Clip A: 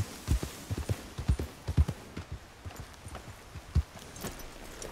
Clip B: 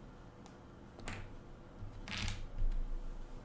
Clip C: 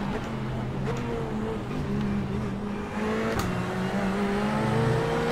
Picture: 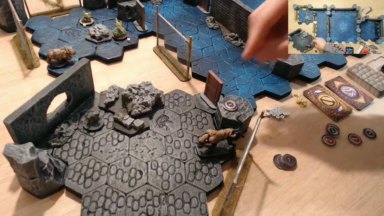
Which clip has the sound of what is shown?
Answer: B